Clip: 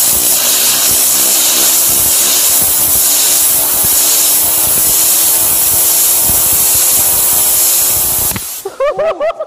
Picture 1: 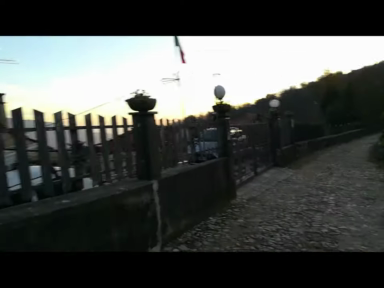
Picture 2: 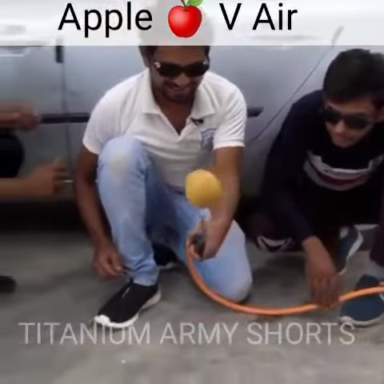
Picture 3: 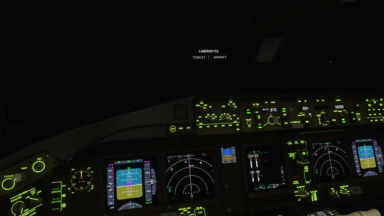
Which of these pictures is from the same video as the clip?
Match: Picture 2